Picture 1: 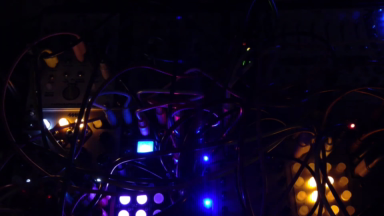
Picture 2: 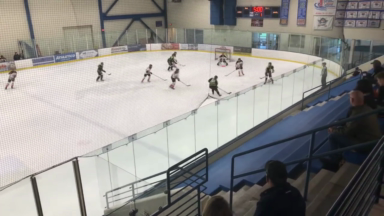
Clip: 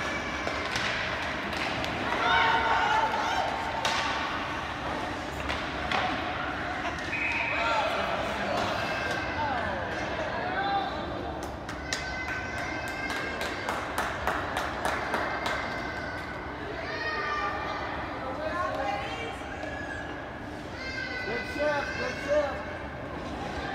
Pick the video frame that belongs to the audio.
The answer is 2